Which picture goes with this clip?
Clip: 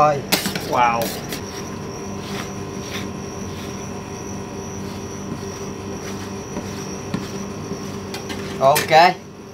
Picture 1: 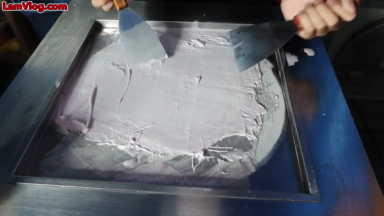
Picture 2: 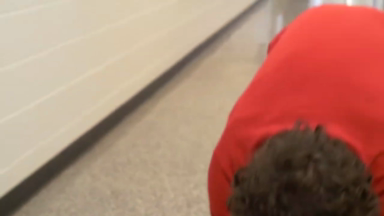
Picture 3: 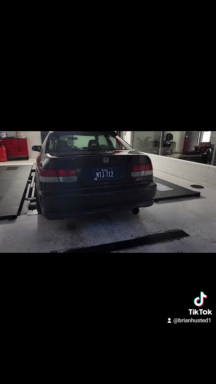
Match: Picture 1